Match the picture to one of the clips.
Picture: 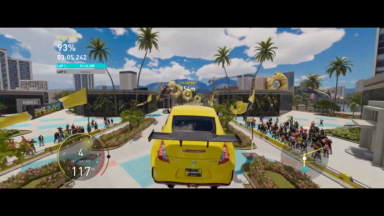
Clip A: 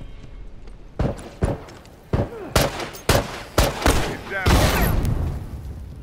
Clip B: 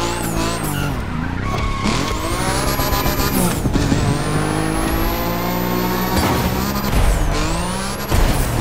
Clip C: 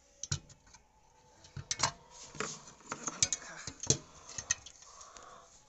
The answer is B